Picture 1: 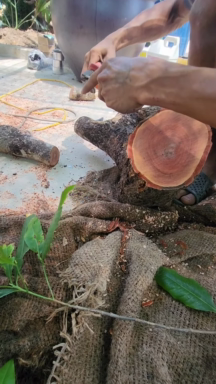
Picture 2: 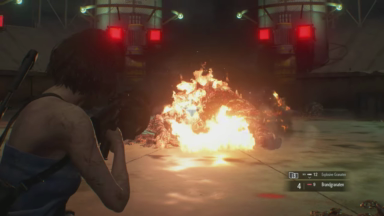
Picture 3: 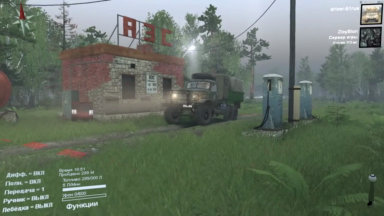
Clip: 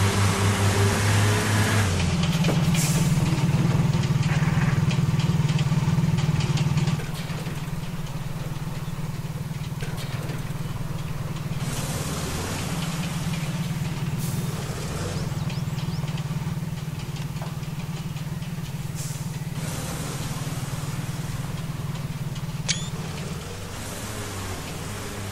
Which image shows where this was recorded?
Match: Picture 3